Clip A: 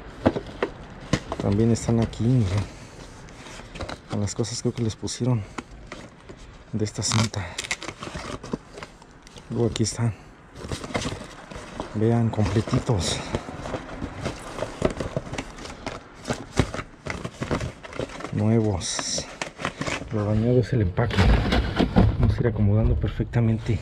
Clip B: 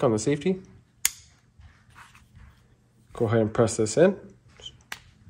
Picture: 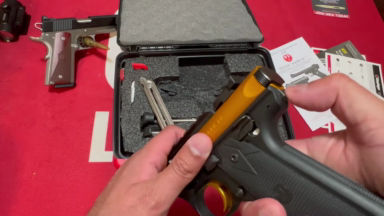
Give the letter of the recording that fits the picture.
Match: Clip B